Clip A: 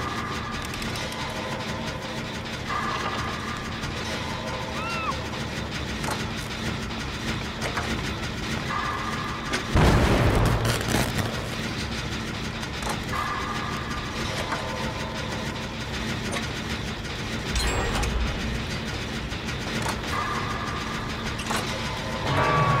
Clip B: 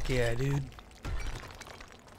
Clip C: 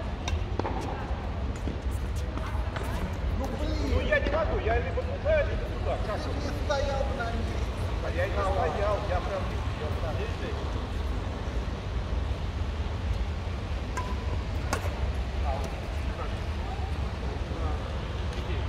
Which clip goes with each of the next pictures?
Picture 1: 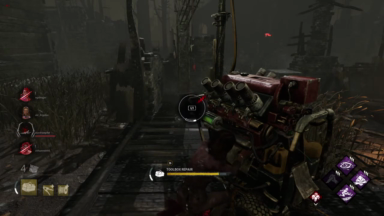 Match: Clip A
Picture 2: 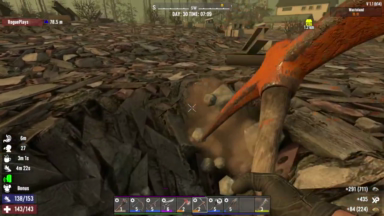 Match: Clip B